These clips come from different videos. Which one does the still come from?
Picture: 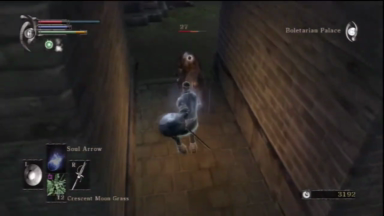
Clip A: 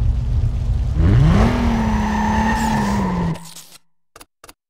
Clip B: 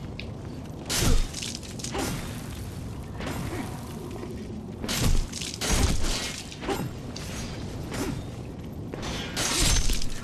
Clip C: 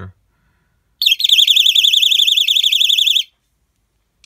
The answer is B